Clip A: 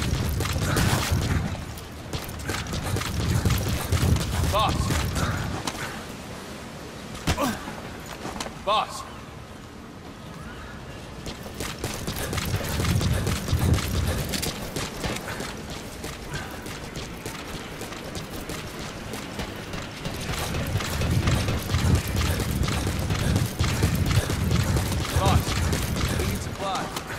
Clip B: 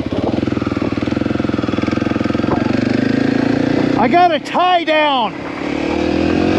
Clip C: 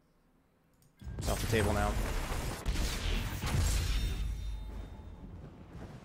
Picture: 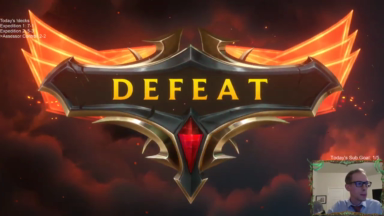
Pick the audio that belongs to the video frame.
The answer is C